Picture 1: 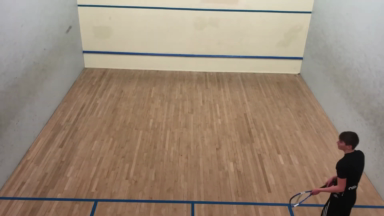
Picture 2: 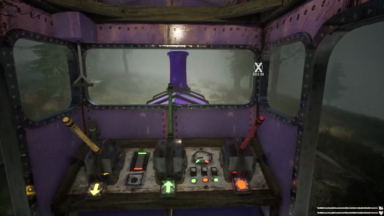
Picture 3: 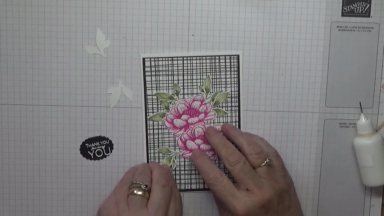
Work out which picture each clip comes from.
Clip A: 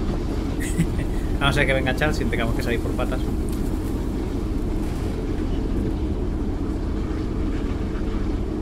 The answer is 2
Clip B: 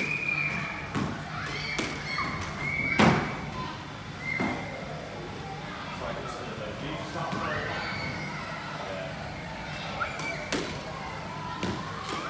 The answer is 1